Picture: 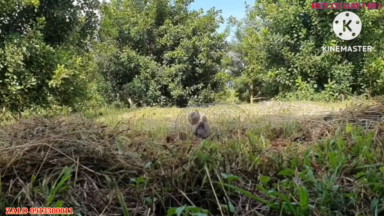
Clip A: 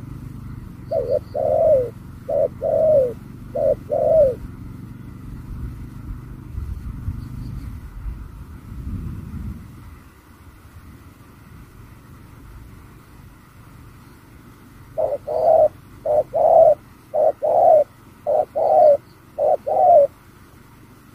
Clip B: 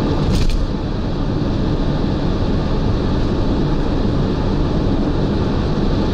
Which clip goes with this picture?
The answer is A